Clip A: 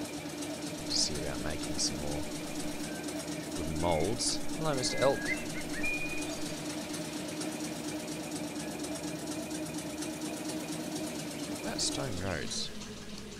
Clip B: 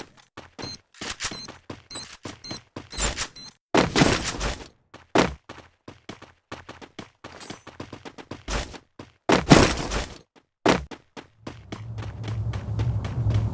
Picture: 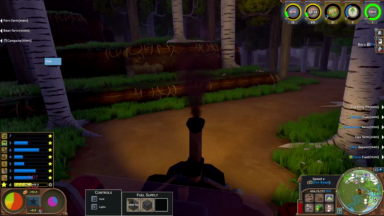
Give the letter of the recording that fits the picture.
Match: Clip A